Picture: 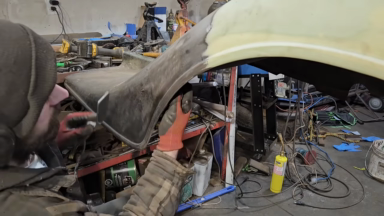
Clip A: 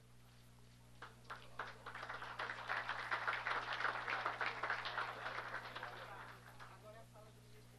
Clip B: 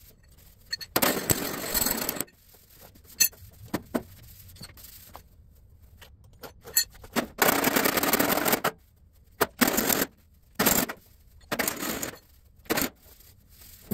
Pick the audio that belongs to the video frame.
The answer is B